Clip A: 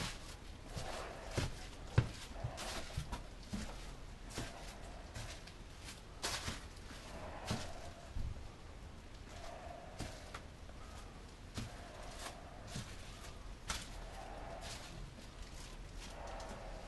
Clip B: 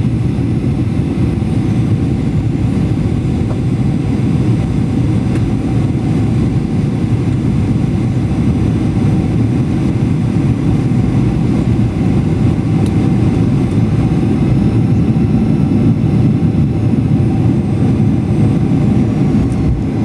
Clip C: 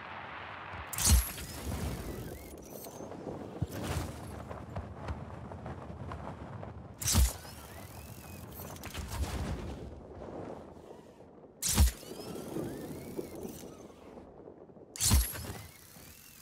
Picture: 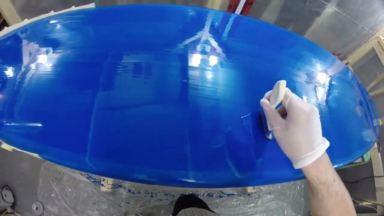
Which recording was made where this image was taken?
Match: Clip A